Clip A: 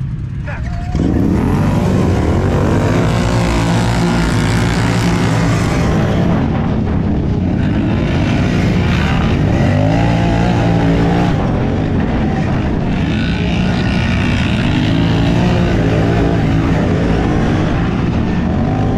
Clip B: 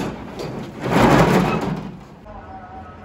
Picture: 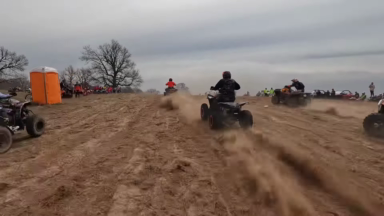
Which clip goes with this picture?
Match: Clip A